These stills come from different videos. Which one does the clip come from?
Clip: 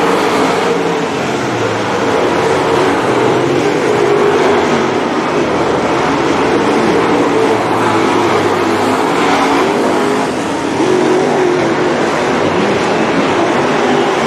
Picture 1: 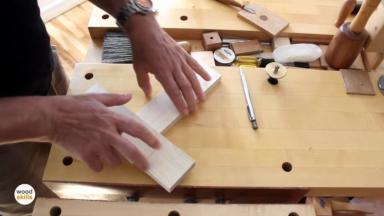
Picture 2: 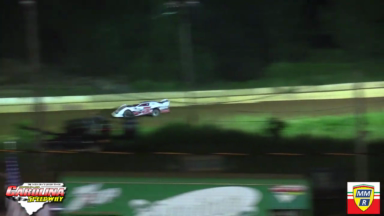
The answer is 2